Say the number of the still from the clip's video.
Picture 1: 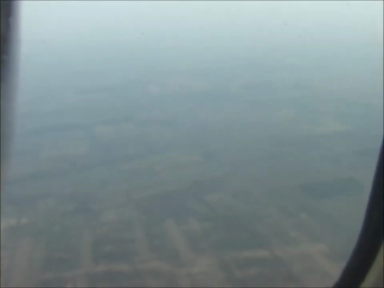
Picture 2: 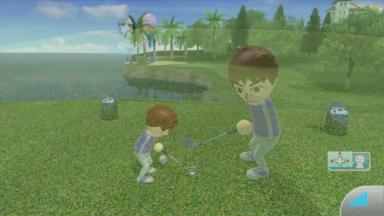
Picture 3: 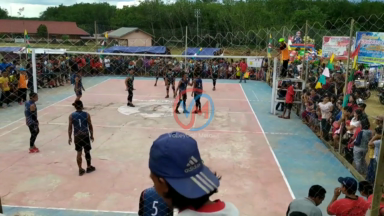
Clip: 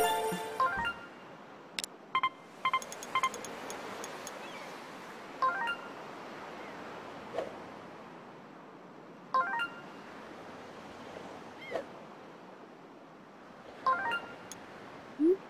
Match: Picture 2